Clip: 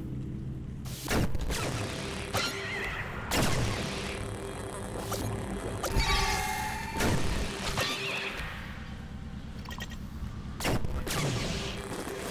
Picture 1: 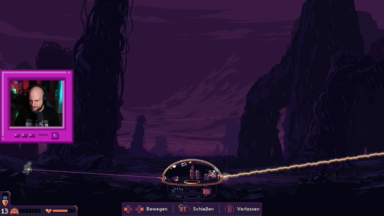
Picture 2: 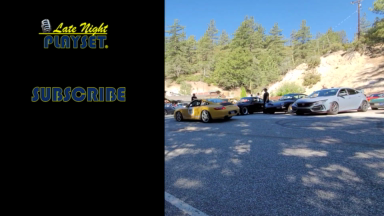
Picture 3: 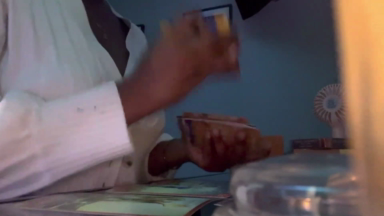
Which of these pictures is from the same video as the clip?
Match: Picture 1